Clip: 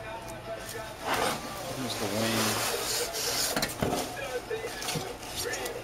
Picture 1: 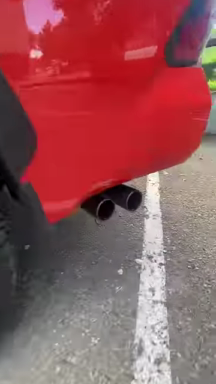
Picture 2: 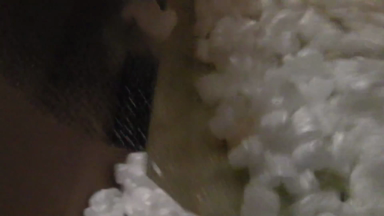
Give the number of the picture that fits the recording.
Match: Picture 2